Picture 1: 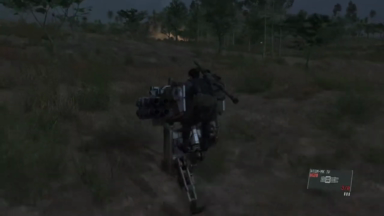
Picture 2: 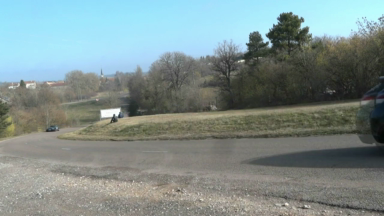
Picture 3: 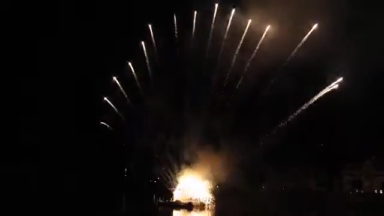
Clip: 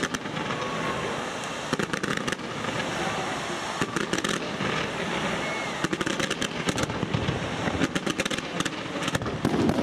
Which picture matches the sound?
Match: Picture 3